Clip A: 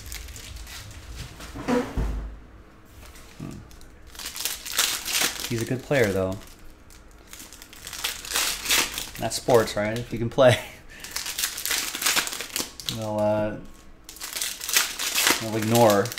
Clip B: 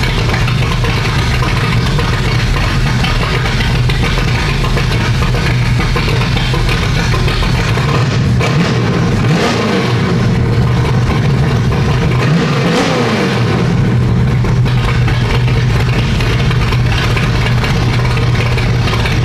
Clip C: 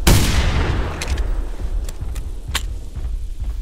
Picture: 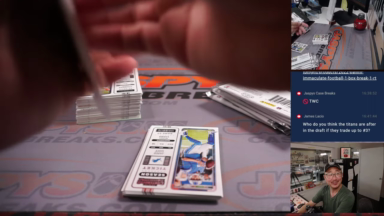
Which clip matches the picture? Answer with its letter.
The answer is A